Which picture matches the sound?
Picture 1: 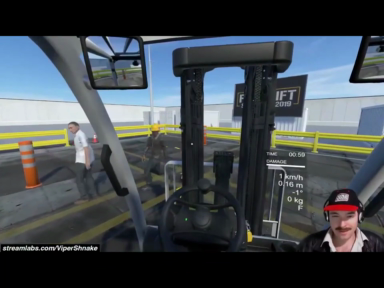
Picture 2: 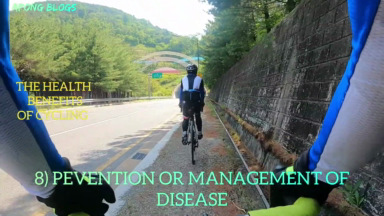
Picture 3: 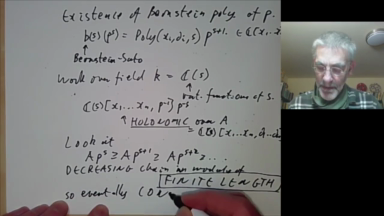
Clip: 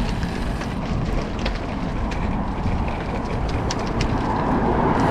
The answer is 2